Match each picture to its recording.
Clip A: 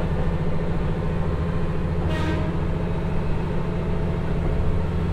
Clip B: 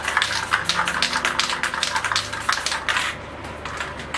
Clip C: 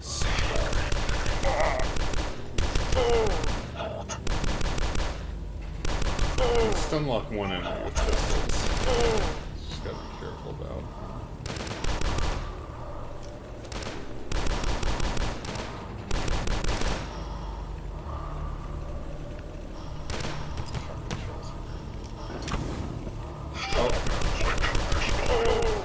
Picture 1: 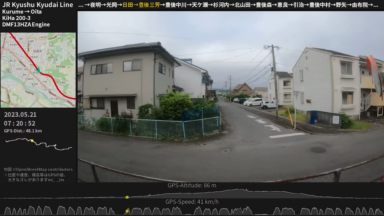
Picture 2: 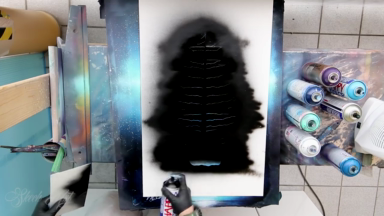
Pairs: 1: A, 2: B